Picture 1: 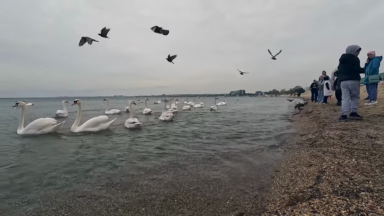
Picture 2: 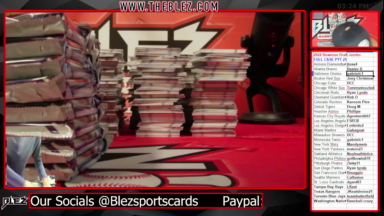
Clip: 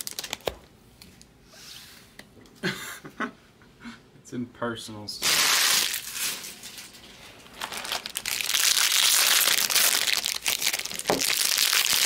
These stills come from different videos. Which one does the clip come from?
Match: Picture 2